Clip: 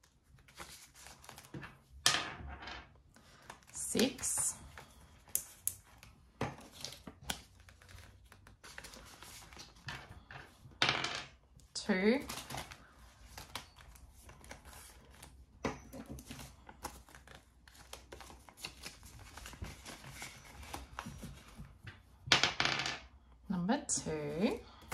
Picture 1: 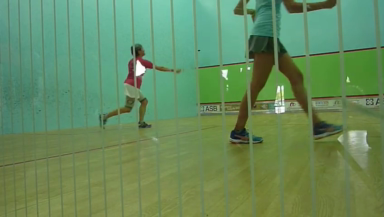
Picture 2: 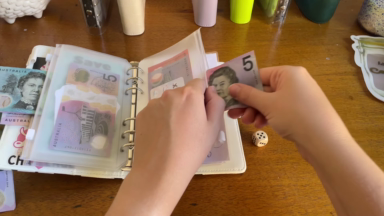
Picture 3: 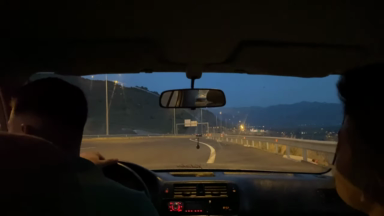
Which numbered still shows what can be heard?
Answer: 2